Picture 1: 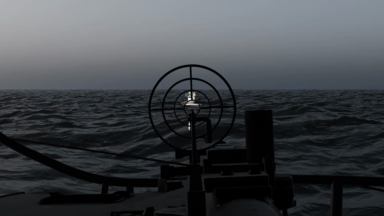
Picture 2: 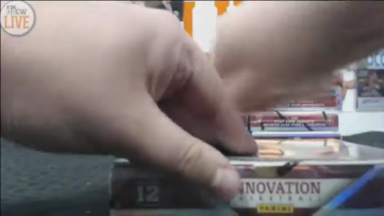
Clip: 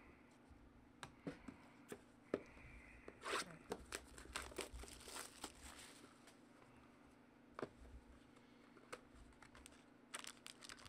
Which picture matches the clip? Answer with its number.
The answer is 2